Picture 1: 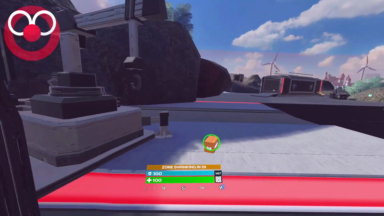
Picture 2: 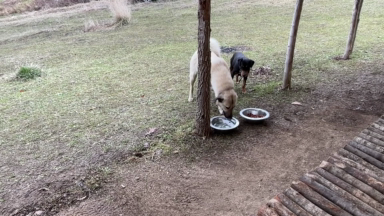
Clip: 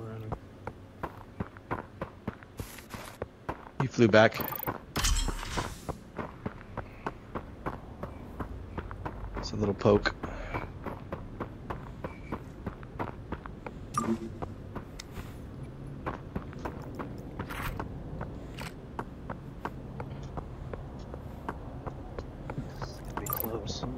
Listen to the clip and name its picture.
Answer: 1